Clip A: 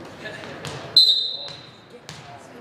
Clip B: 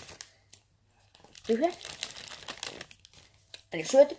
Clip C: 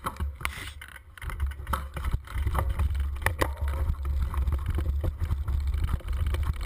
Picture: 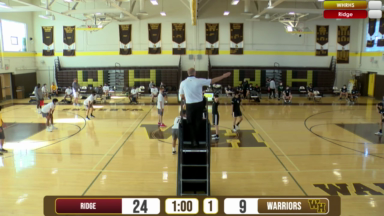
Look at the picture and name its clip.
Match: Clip A